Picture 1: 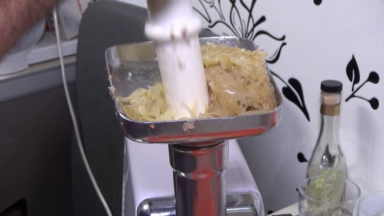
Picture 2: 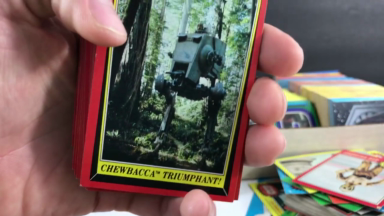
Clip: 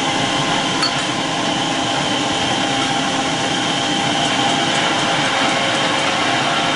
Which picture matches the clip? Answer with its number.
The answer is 1